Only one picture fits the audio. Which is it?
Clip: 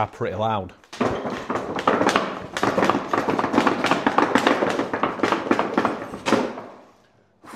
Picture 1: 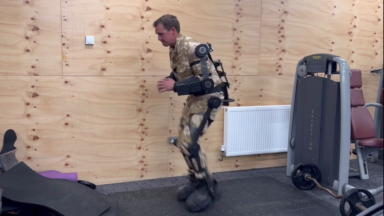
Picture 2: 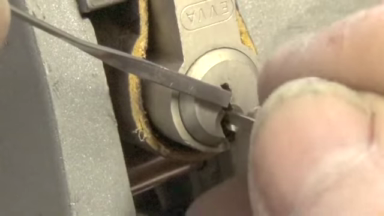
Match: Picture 1